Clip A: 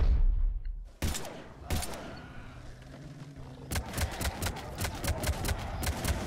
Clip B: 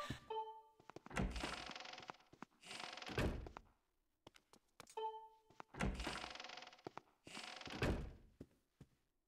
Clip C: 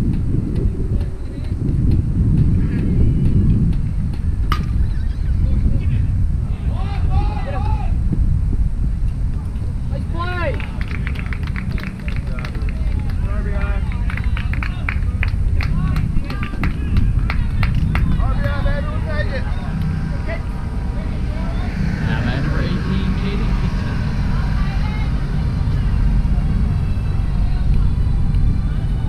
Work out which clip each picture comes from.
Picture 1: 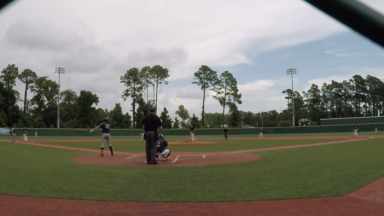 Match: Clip C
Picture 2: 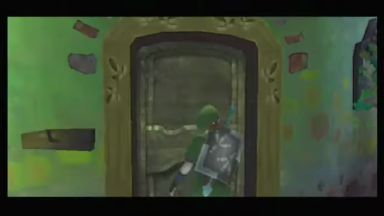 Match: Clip B